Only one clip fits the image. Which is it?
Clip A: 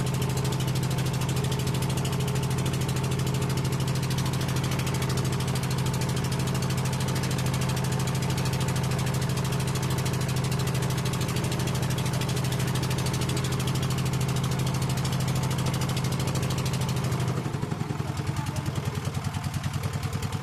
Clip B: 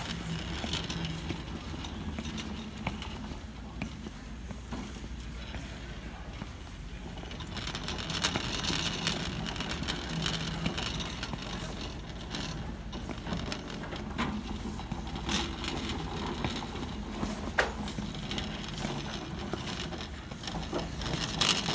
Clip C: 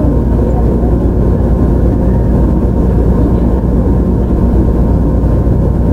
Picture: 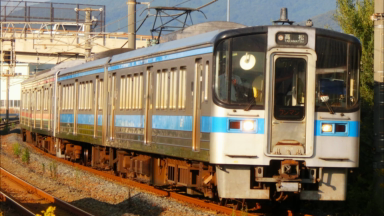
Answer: C